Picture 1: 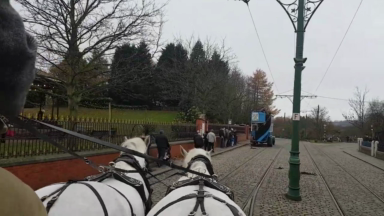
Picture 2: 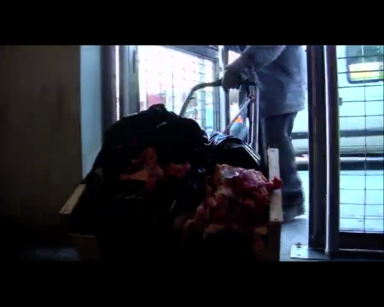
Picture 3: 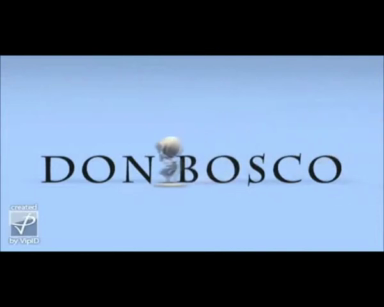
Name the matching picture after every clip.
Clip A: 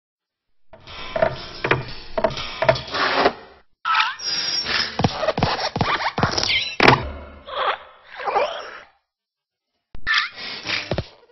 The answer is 3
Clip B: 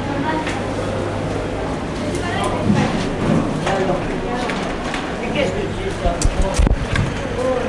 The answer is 2